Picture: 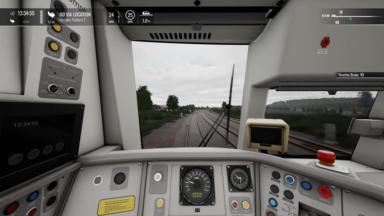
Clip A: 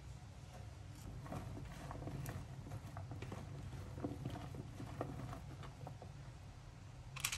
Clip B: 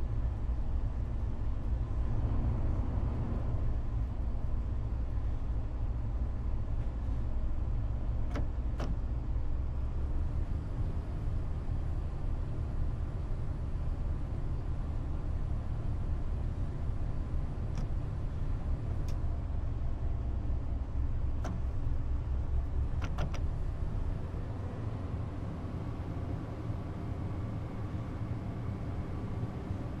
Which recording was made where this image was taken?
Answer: B